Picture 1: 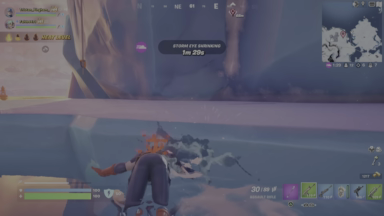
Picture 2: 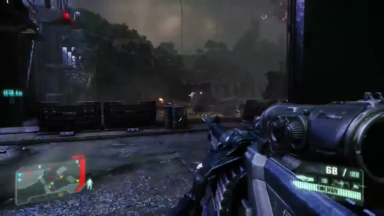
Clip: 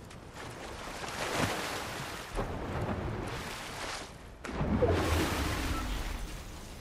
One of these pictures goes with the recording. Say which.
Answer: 1